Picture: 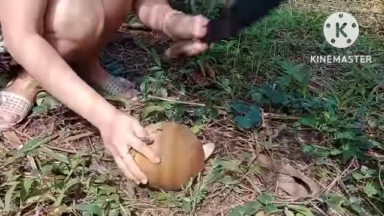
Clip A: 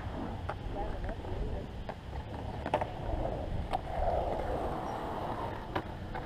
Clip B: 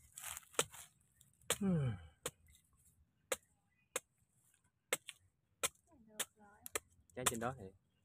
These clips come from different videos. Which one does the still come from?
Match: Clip B